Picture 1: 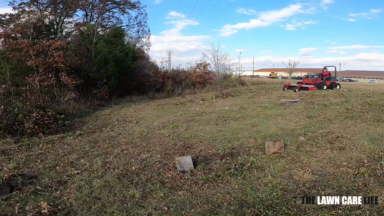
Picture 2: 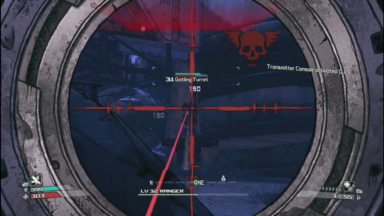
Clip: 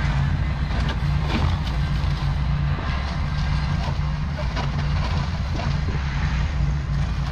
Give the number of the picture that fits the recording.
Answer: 1